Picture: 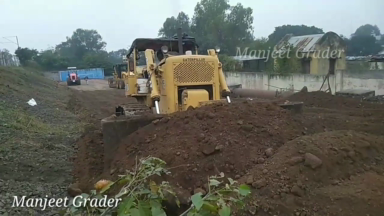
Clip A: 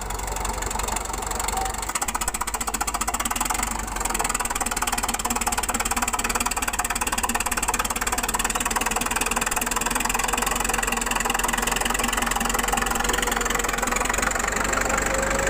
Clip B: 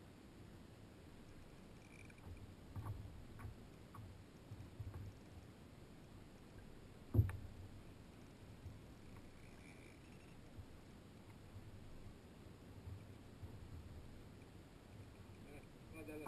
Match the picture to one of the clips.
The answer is A